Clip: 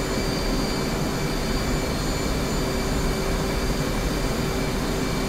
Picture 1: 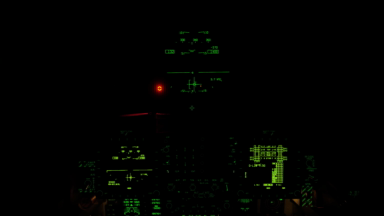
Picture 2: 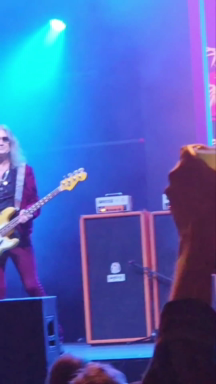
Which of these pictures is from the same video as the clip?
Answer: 1